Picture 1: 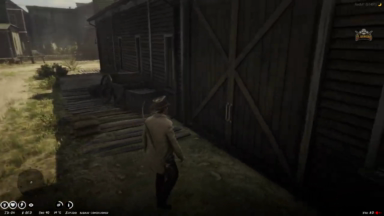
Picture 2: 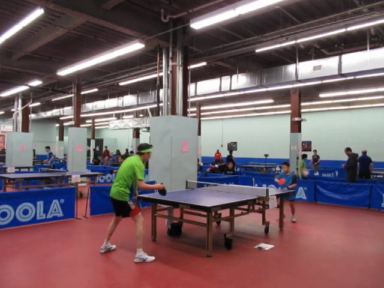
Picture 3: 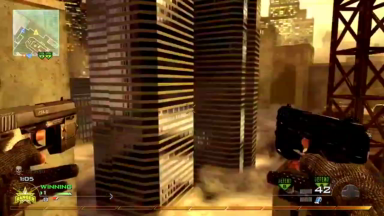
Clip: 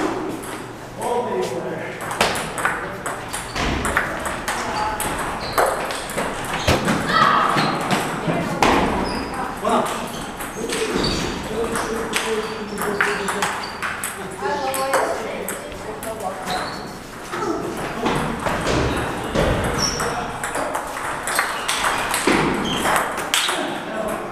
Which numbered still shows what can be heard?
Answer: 2